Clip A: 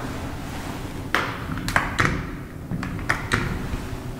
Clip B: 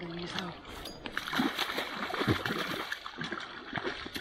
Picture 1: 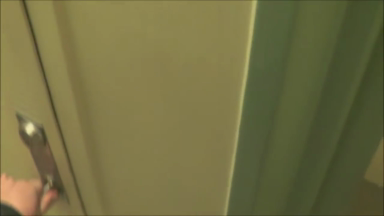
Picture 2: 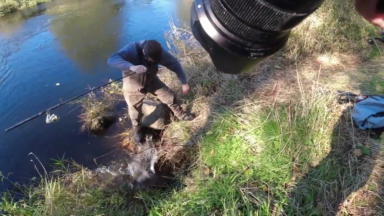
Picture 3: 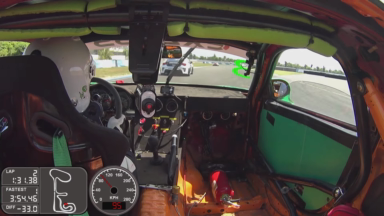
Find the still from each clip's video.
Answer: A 1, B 2